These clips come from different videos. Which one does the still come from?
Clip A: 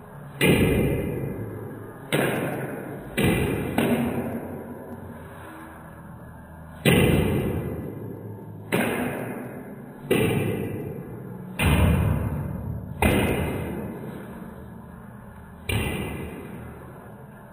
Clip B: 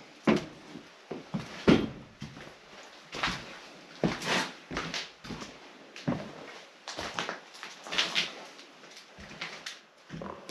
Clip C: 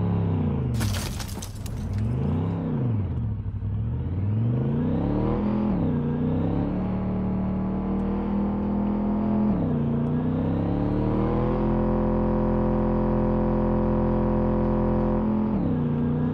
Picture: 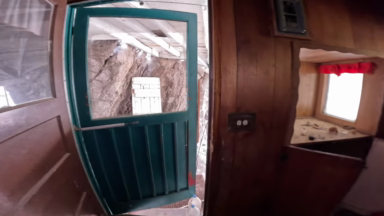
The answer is B